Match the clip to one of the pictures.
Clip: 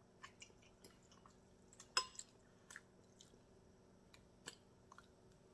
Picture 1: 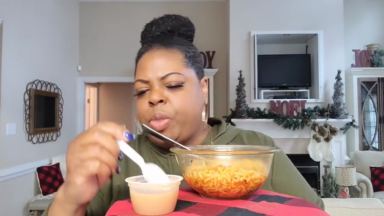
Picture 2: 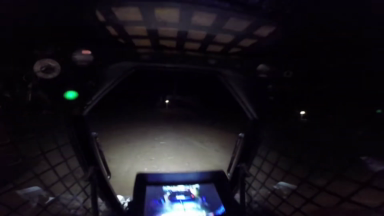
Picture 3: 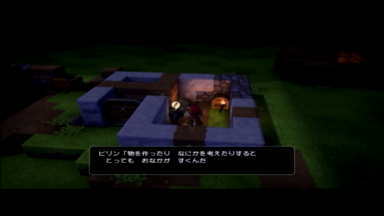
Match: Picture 1